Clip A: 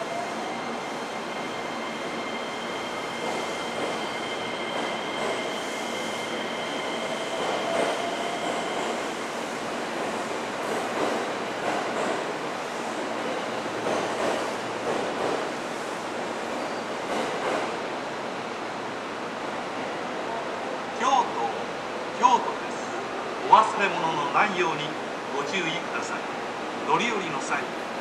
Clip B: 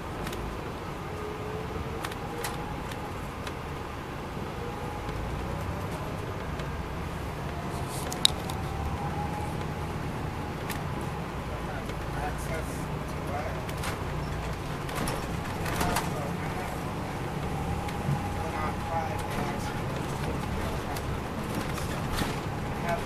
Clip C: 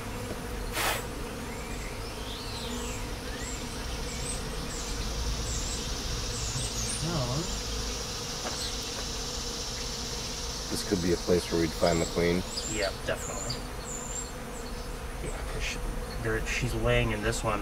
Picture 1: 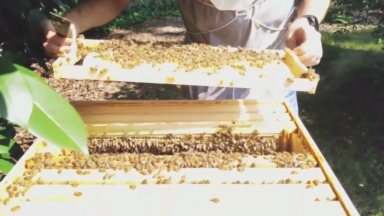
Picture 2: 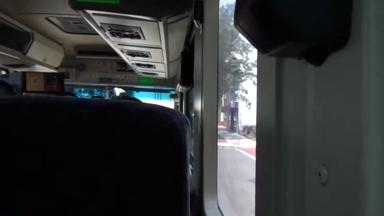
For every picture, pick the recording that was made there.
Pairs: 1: C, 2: B